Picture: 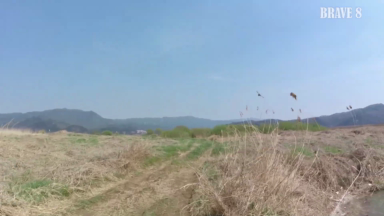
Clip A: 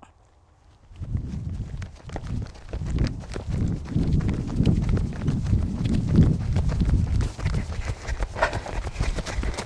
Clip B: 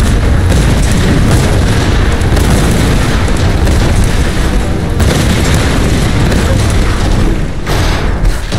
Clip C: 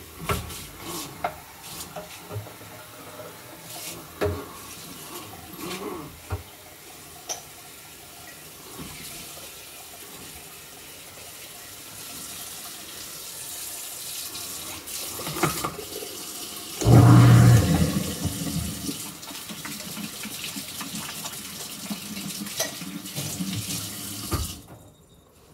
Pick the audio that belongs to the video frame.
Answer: A